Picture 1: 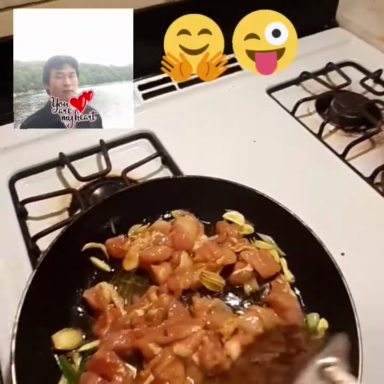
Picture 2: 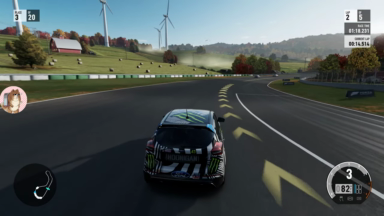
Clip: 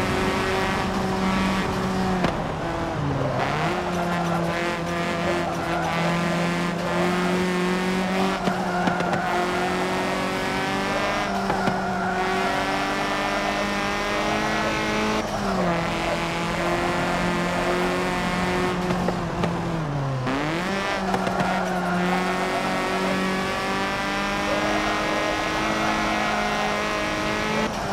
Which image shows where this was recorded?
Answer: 2